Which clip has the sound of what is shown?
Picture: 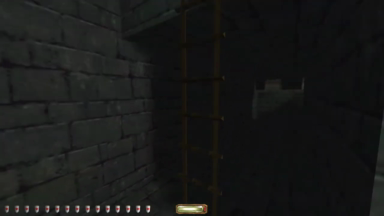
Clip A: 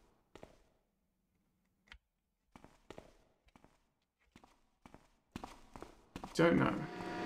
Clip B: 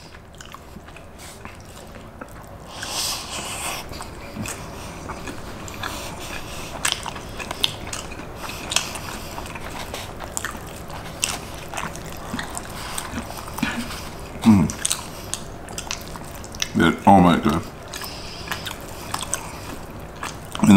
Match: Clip A